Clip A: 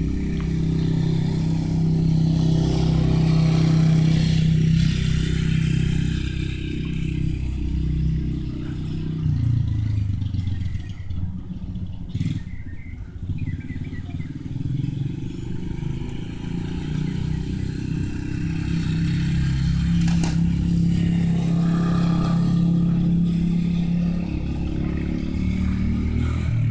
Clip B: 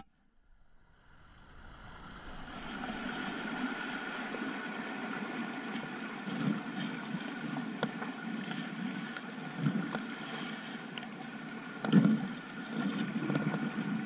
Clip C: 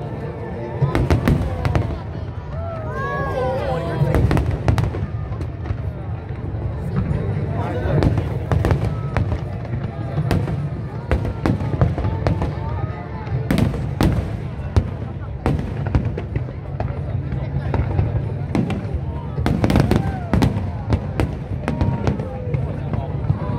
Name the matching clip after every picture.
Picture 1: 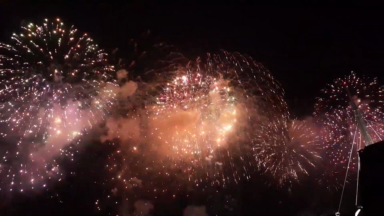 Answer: C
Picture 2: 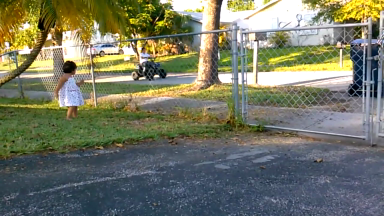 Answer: A